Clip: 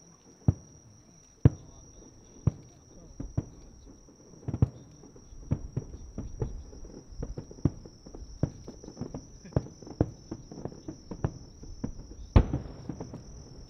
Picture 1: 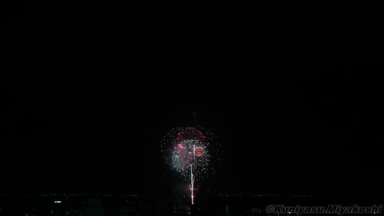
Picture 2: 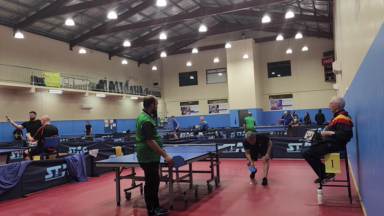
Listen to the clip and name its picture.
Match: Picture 1